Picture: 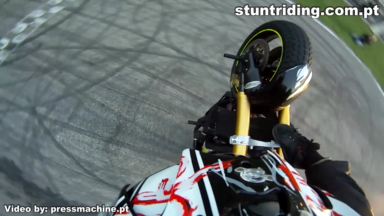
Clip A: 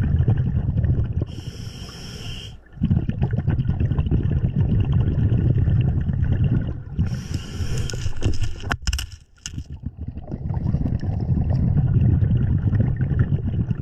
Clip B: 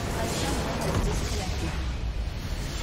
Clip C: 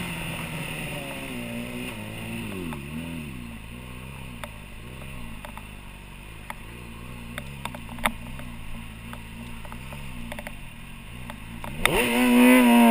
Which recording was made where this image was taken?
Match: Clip C